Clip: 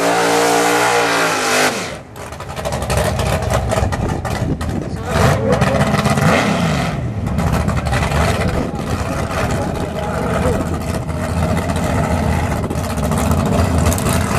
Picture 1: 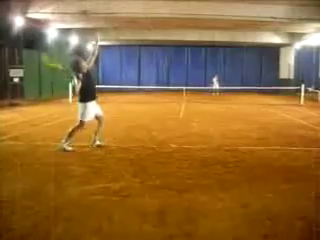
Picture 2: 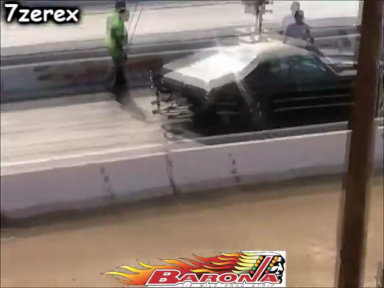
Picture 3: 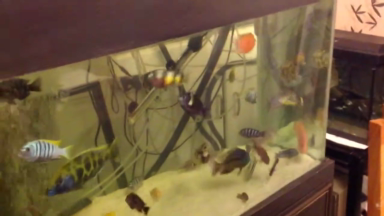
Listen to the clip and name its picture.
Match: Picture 2